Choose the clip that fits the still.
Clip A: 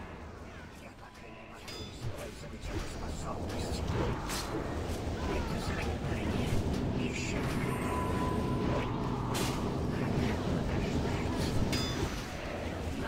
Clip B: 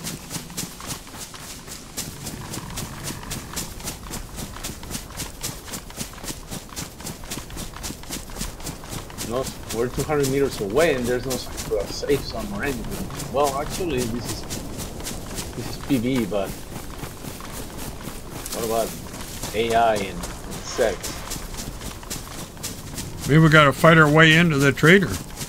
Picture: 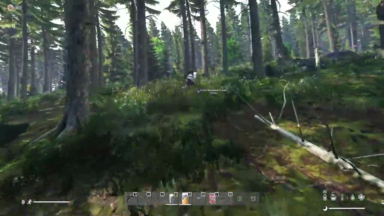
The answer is B